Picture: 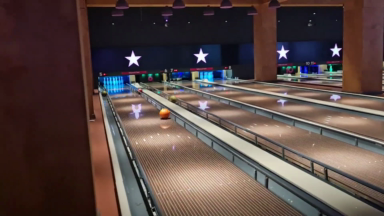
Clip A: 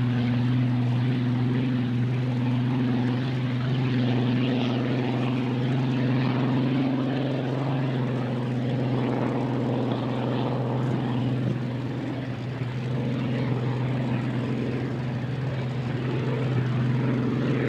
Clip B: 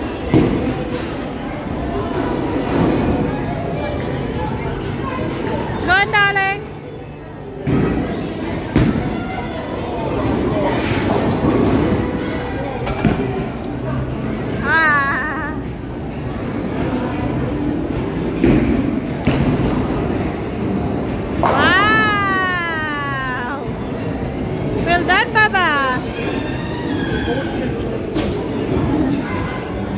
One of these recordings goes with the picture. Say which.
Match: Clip B